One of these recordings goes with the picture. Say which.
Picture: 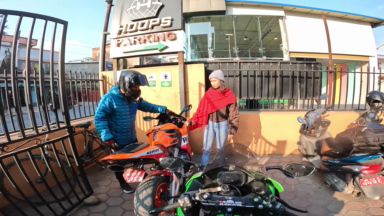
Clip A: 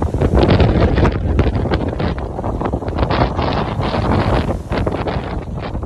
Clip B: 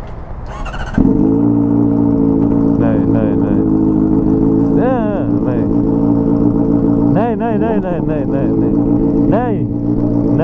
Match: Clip B